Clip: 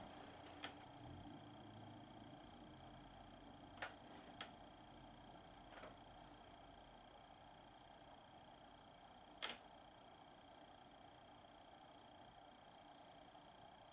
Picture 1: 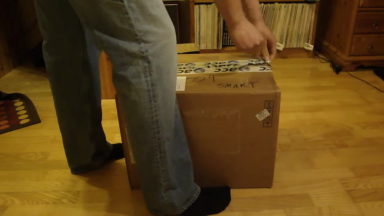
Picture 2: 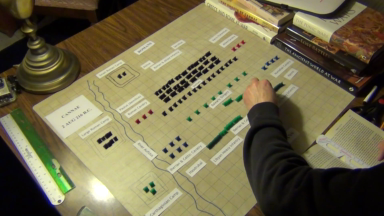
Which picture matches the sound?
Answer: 2